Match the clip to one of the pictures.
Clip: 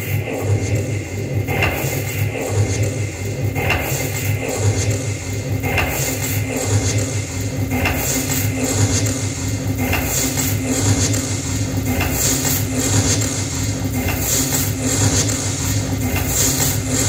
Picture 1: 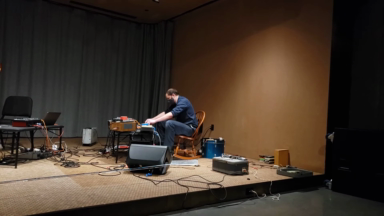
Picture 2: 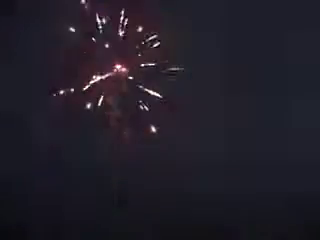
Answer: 1